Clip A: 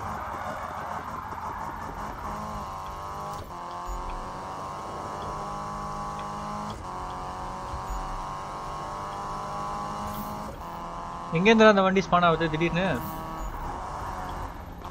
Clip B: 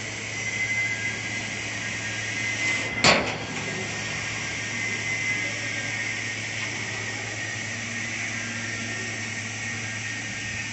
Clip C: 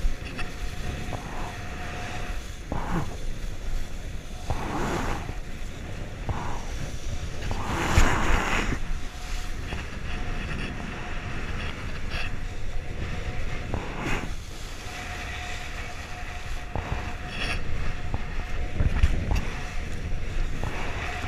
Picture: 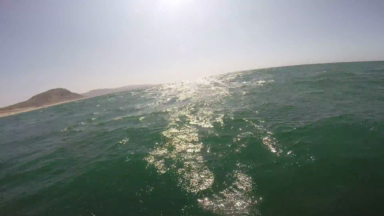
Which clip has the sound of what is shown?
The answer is C